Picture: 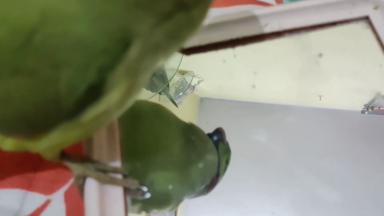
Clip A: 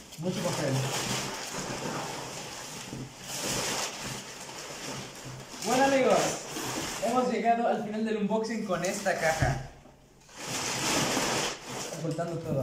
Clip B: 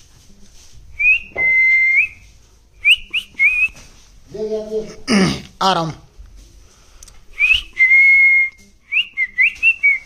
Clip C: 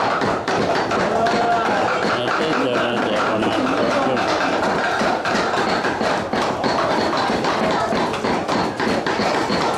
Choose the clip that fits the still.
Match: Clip B